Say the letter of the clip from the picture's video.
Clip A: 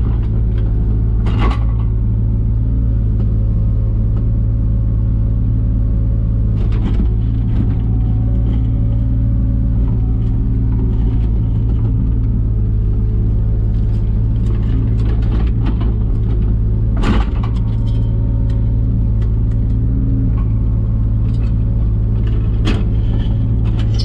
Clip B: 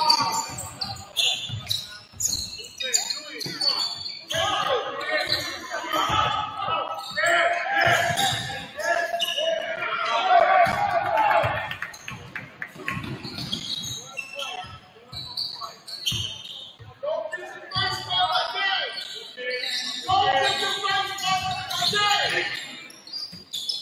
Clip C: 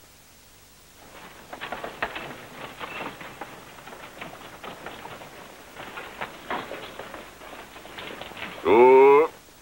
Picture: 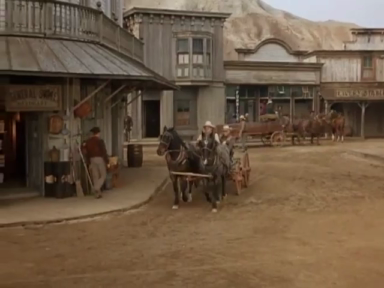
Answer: C